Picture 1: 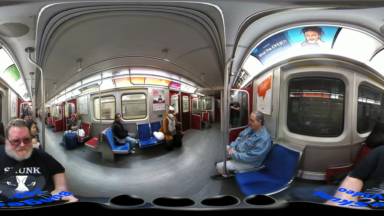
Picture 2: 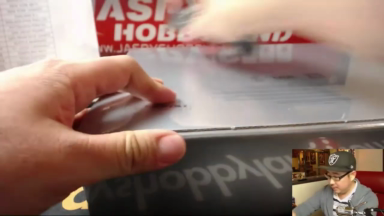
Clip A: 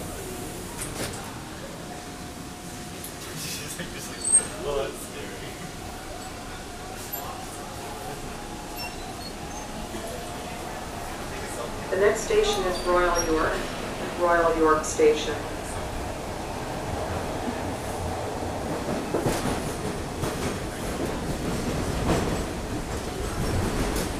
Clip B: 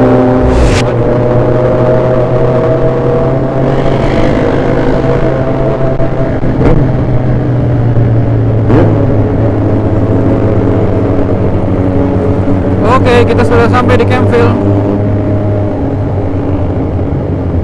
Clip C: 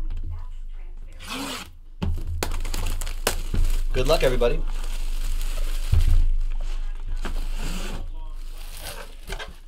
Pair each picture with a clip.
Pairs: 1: A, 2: C